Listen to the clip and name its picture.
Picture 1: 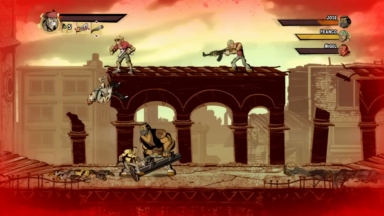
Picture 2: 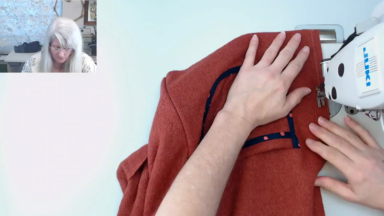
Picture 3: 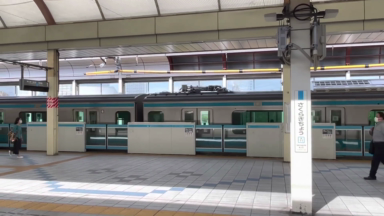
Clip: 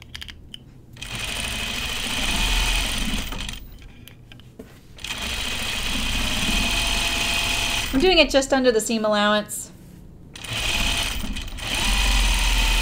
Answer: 2